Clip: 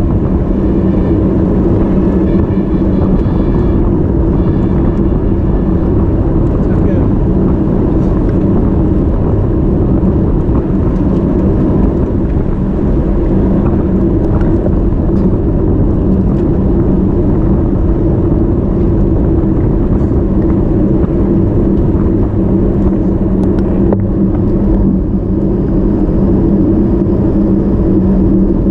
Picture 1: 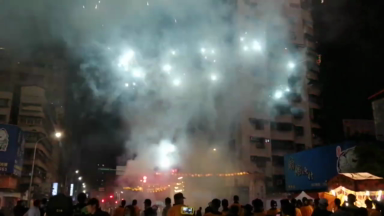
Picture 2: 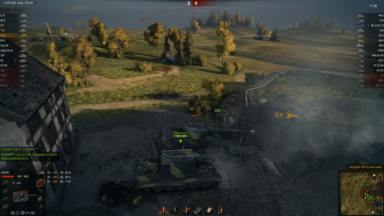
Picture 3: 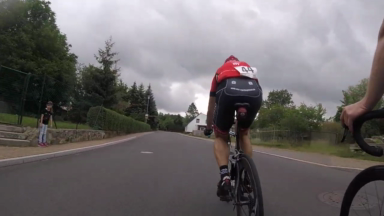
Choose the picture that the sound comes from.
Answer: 3